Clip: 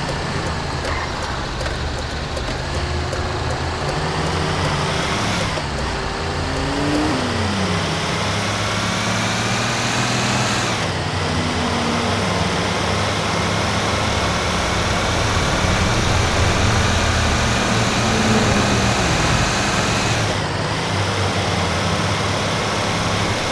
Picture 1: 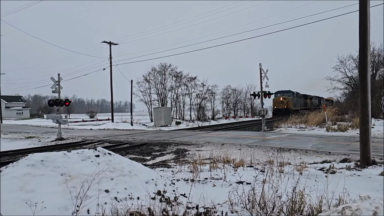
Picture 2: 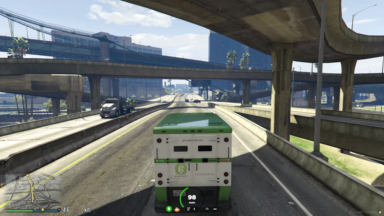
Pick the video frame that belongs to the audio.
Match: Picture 2